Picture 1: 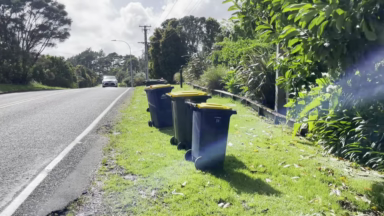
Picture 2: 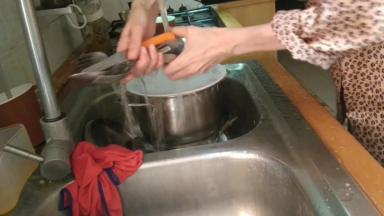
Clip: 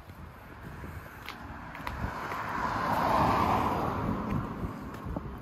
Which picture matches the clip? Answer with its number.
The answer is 1